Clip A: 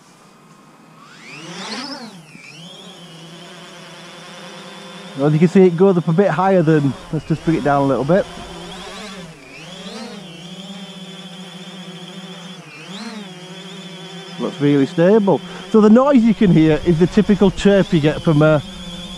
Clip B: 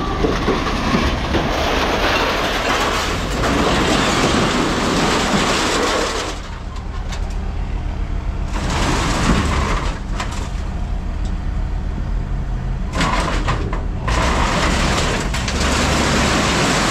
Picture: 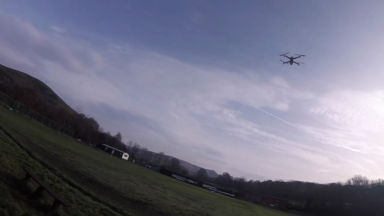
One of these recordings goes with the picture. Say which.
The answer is A